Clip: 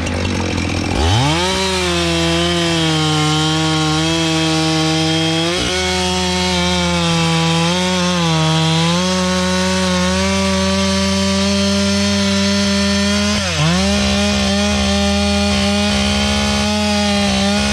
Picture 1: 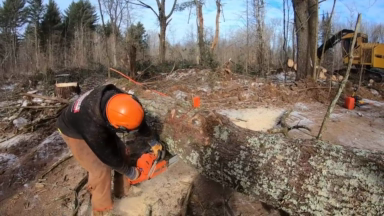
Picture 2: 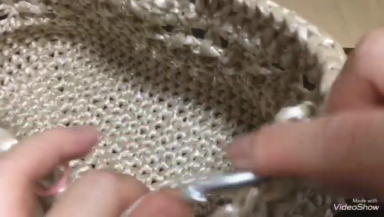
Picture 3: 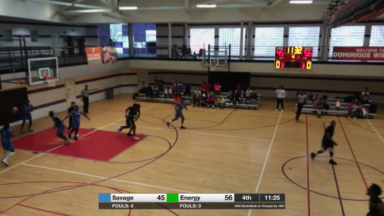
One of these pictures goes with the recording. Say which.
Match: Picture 1